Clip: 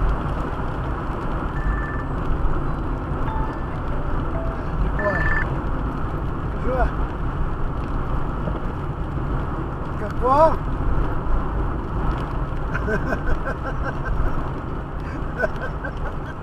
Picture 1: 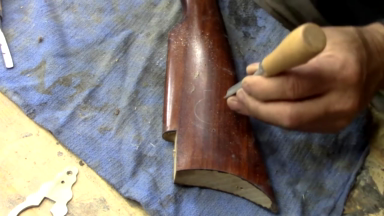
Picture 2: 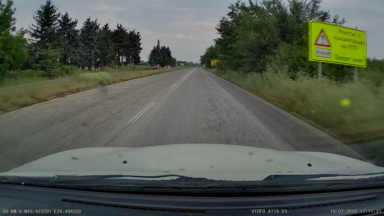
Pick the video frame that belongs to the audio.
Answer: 2